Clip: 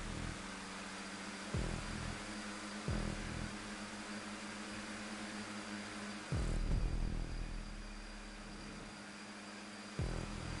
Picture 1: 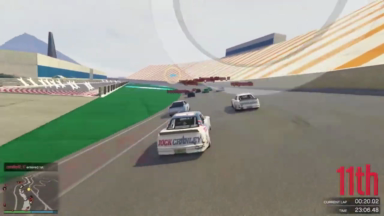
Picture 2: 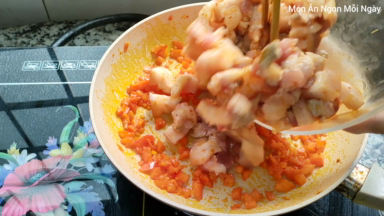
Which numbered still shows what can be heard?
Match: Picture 1